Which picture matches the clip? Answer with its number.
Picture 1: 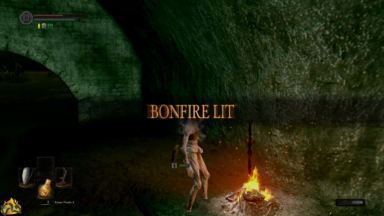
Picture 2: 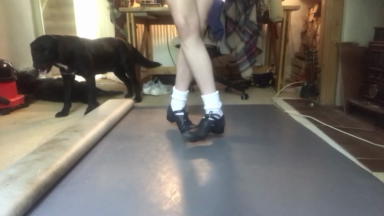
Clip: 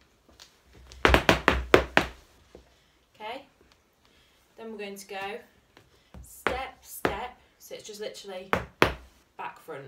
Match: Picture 2